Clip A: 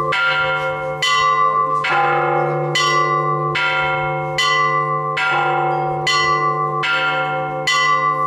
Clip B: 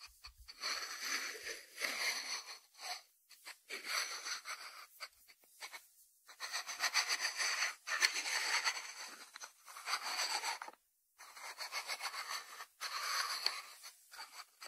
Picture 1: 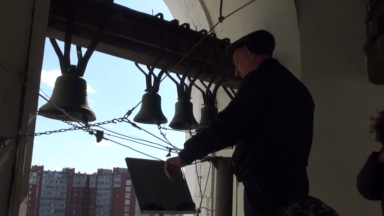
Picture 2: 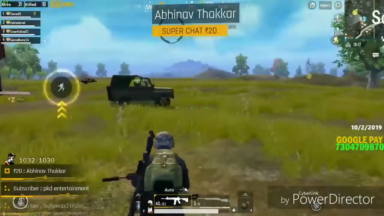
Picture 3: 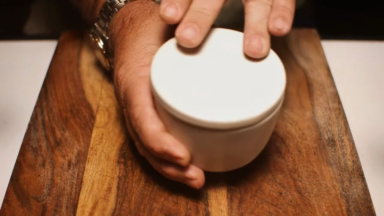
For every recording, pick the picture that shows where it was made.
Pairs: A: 1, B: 3